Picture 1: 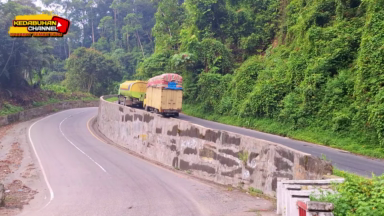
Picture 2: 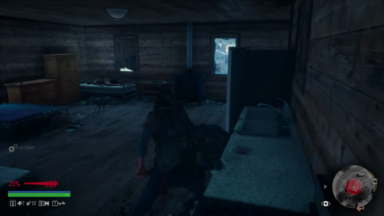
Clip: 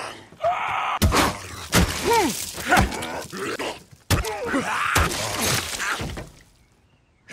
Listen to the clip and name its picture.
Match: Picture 2